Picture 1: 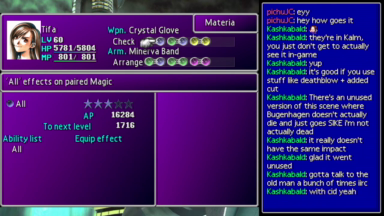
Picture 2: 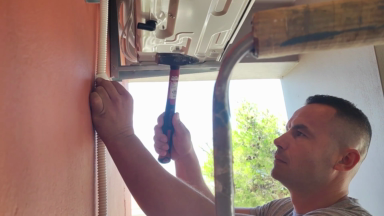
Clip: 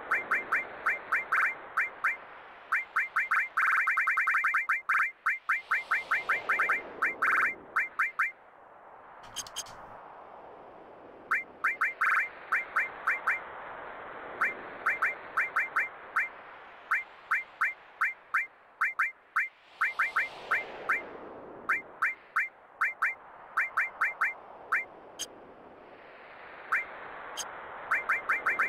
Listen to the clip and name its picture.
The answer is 1